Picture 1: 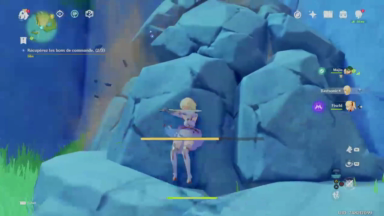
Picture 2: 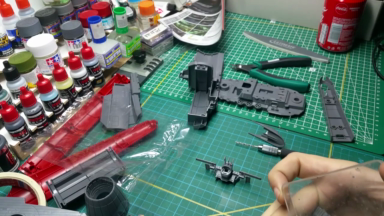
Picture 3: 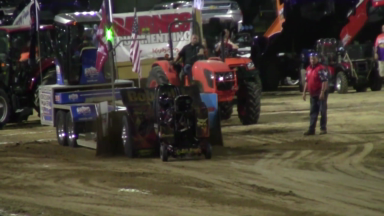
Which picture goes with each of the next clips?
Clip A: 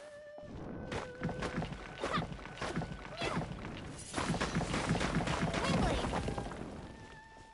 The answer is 1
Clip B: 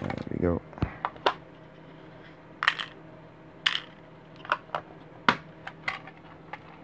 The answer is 2